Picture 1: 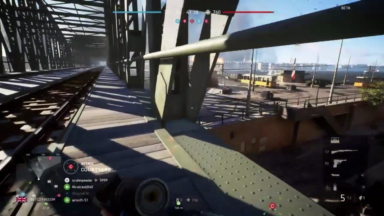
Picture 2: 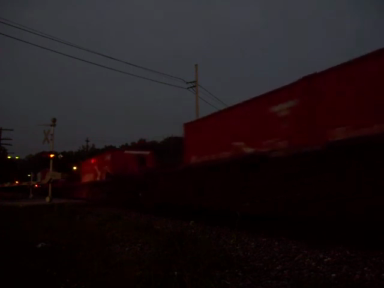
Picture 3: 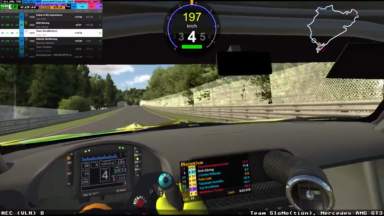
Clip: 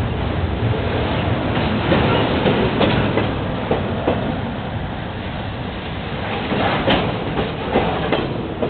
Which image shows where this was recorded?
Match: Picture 2